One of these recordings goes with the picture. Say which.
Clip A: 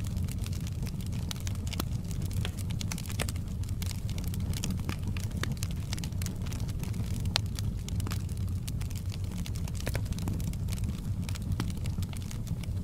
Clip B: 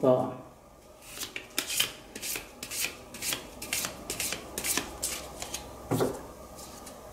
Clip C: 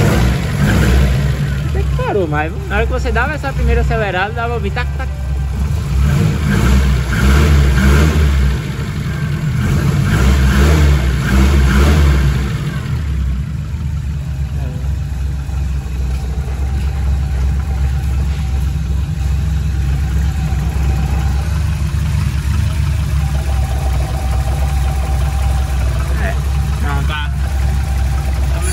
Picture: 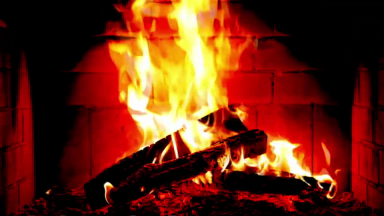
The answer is A